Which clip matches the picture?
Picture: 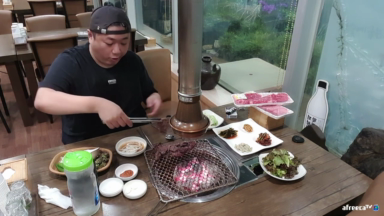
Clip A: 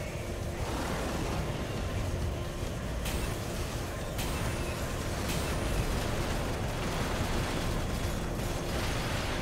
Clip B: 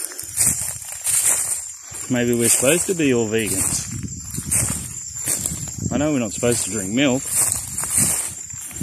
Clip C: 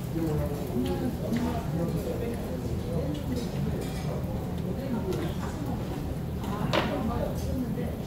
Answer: C